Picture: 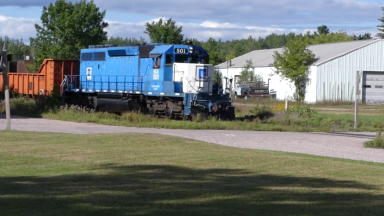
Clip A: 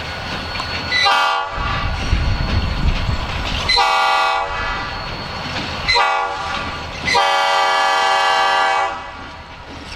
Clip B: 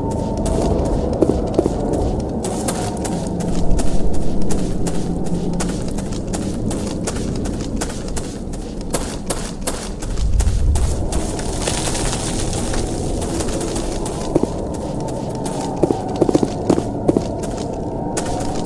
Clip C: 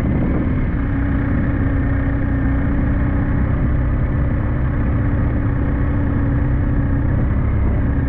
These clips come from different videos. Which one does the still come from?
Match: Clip A